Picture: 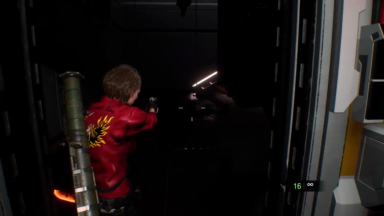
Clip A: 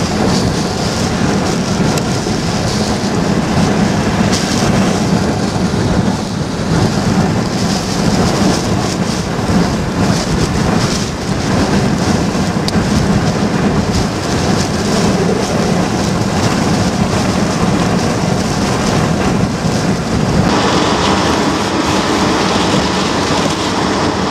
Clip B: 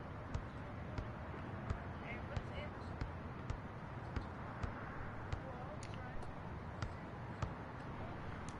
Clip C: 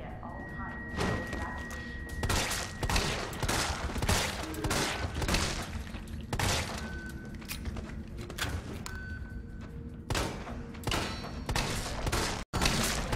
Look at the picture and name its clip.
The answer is C